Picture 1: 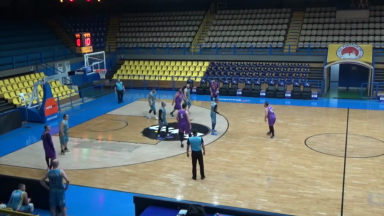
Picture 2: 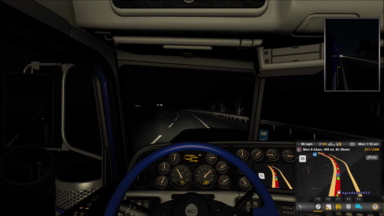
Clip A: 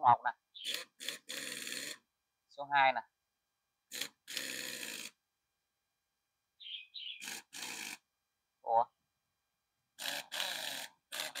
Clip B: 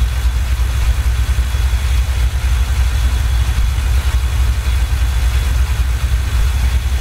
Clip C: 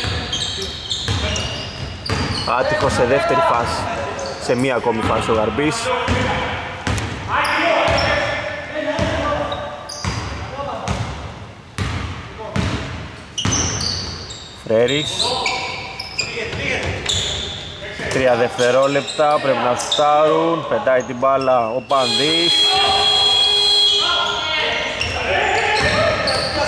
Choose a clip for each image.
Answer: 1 C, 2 B